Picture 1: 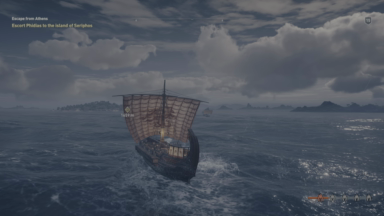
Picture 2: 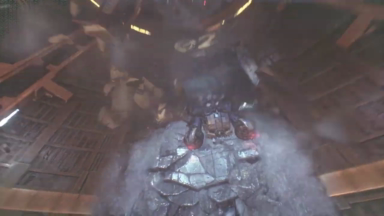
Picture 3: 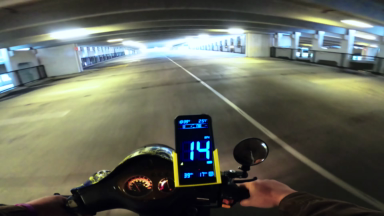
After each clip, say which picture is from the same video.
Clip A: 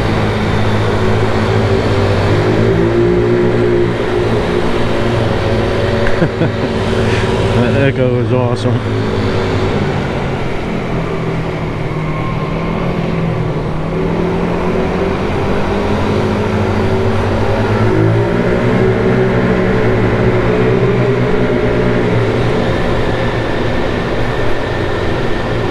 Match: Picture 3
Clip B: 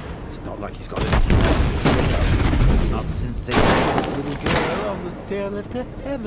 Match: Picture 2